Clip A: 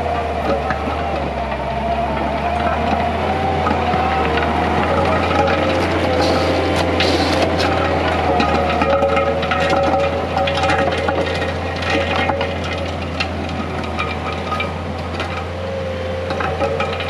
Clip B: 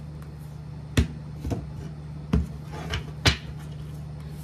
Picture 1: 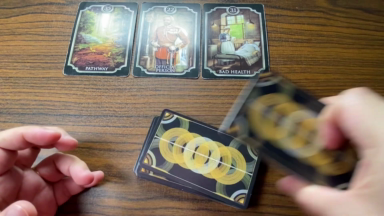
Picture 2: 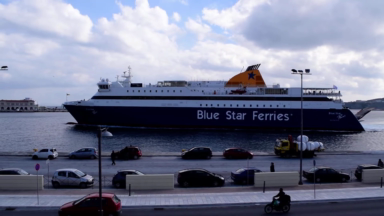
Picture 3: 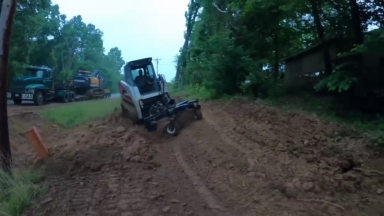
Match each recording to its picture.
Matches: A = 3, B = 1